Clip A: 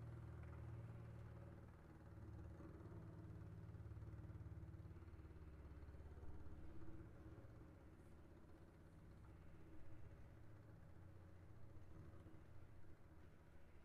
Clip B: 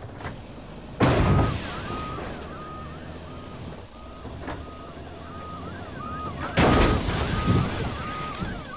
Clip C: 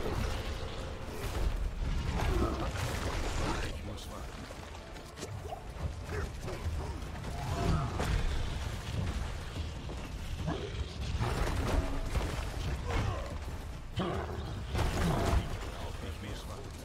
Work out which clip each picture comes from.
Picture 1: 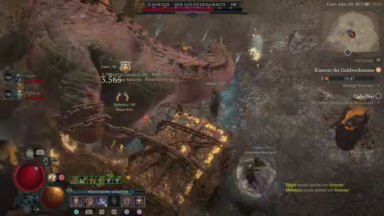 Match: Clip C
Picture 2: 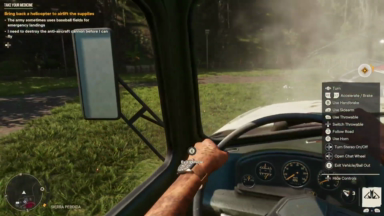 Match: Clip B